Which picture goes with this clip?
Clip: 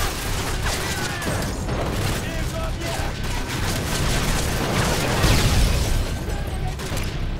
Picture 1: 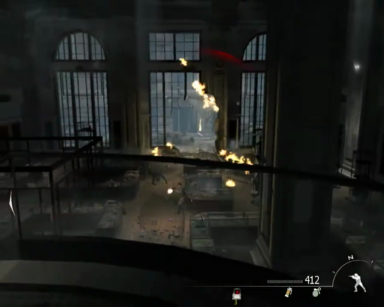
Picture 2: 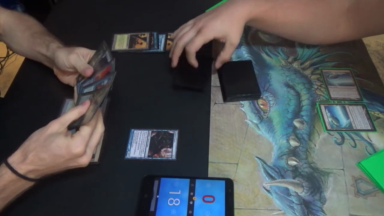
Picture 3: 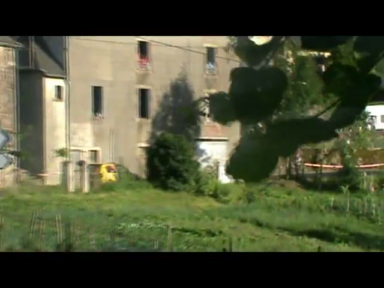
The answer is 1